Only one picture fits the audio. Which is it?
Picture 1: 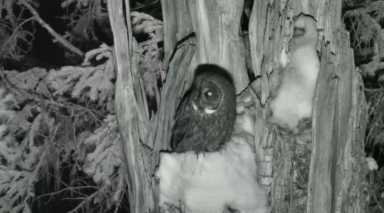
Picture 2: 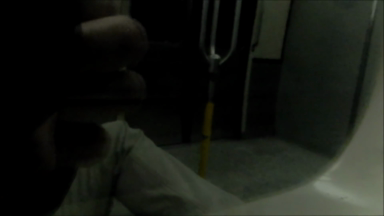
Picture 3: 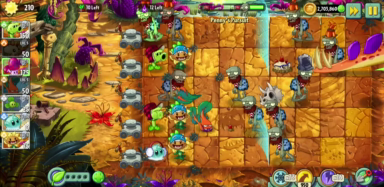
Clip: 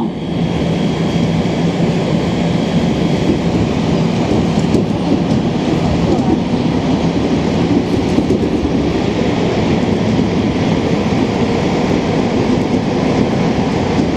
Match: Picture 2